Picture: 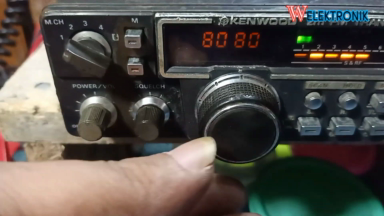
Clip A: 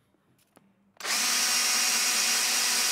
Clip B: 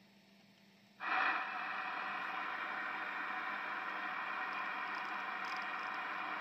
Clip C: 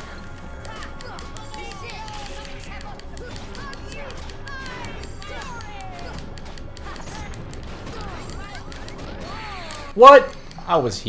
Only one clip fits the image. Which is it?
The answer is B